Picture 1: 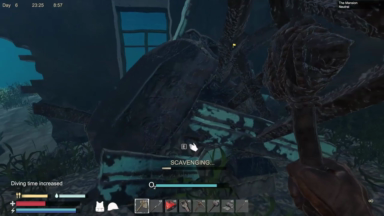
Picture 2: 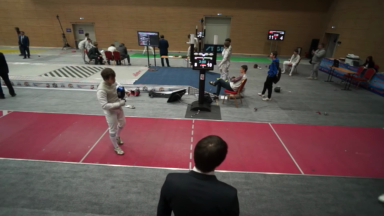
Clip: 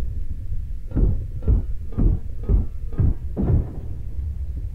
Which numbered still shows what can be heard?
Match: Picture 1